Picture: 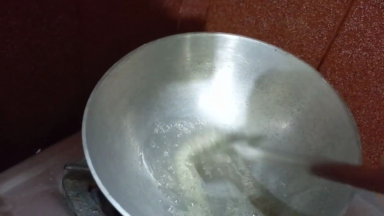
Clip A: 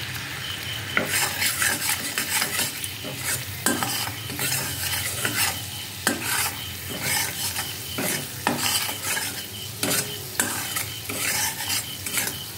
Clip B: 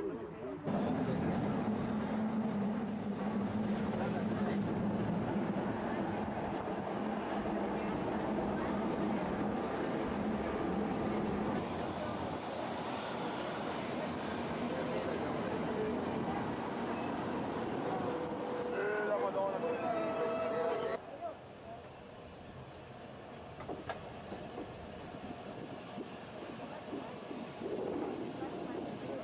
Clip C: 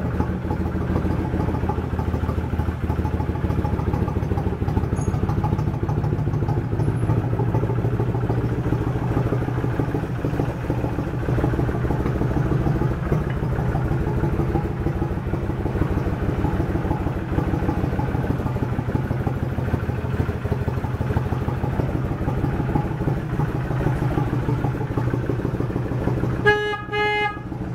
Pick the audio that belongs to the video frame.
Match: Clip A